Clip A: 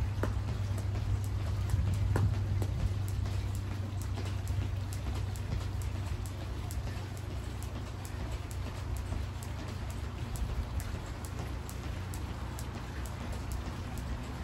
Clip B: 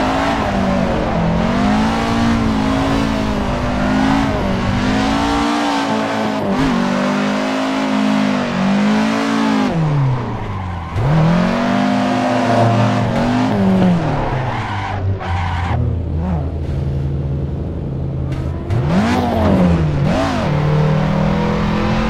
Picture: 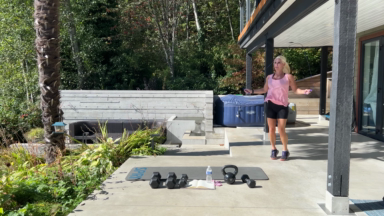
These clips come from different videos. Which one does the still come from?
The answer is A